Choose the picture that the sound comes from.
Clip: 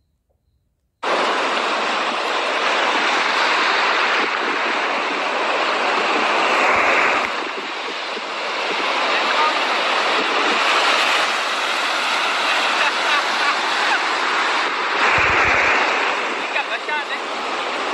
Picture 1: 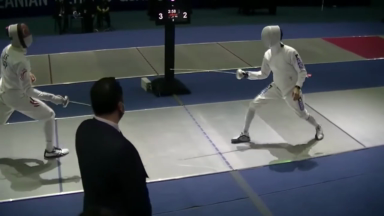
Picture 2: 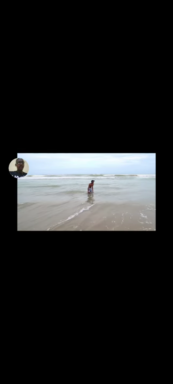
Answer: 2